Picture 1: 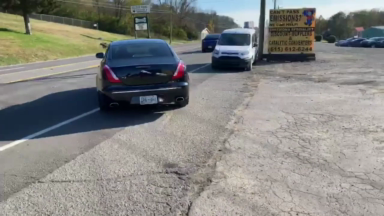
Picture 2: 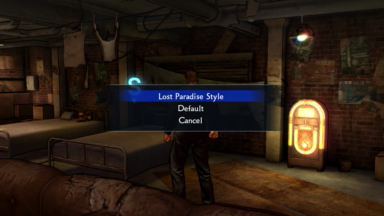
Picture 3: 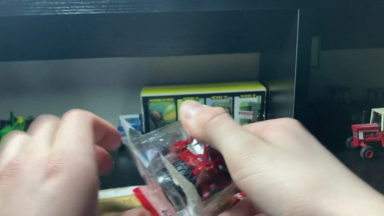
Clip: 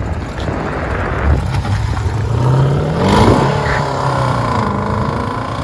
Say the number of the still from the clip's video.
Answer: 1